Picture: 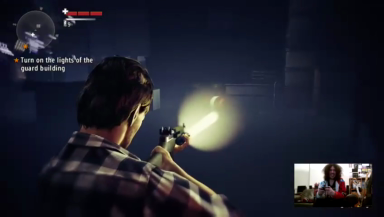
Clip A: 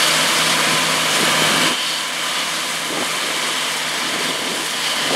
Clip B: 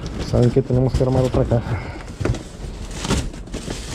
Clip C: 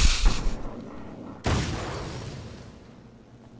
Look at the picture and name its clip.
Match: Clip C